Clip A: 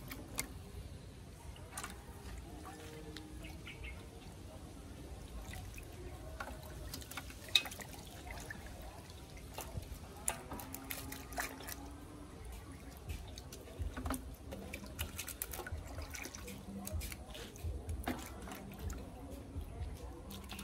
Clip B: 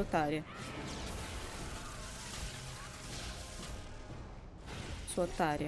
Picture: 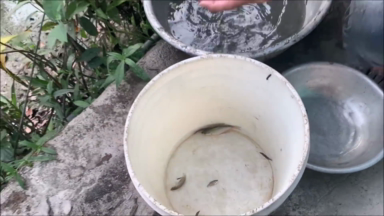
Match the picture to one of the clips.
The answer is A